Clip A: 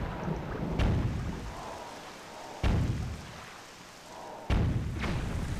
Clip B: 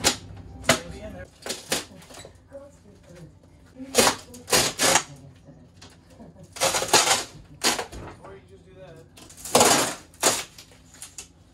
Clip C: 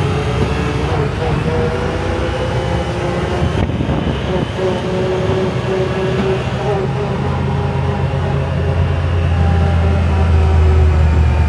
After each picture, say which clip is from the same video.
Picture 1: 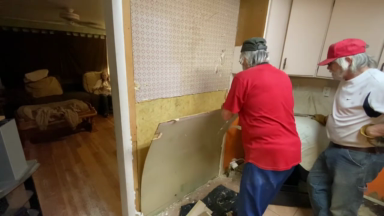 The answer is B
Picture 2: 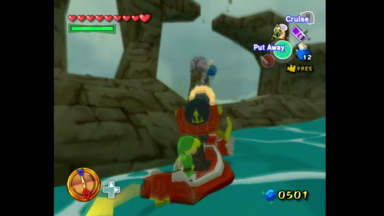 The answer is A